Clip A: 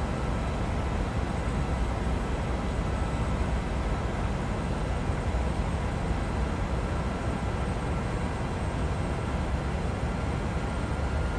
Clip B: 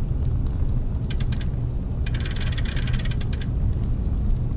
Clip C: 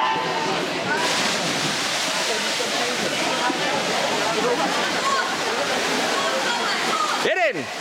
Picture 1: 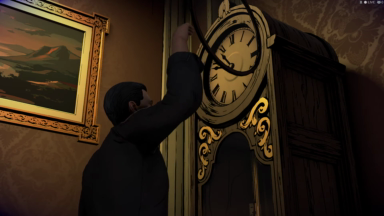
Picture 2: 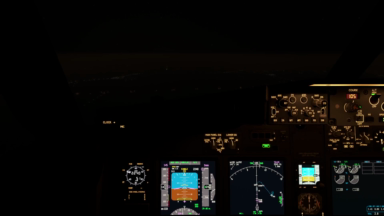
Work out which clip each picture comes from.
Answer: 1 B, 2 A